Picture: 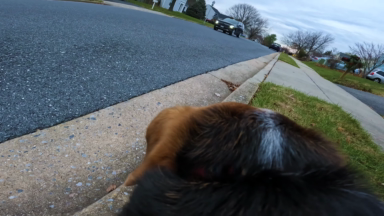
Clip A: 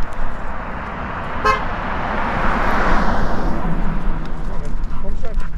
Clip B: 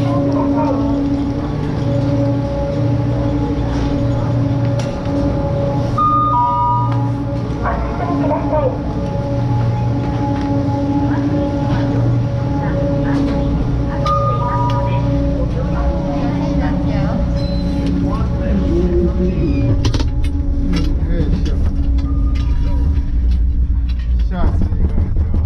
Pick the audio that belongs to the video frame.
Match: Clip A